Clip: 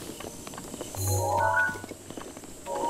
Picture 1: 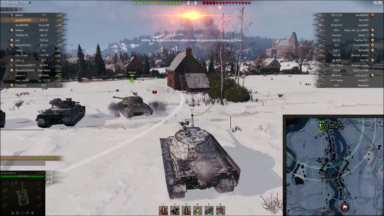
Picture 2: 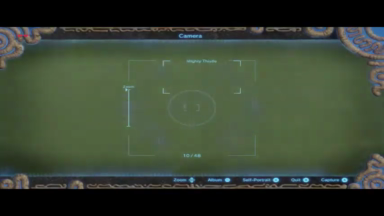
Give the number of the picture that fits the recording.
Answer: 2